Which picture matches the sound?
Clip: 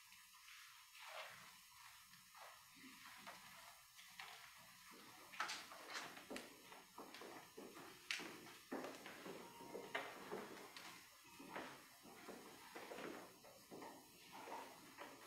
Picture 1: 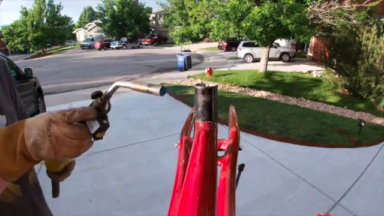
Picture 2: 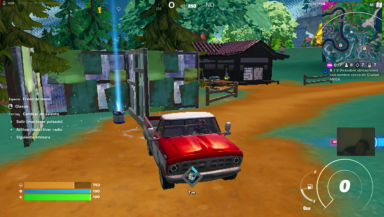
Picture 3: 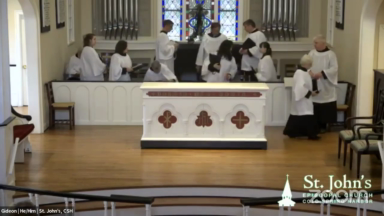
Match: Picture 3